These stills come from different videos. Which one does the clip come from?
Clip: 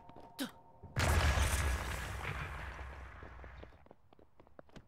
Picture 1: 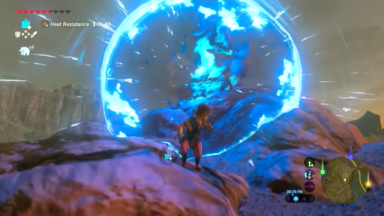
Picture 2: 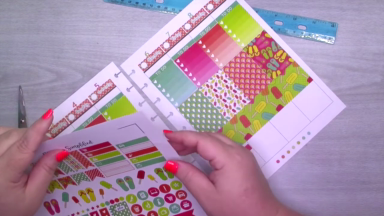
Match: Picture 1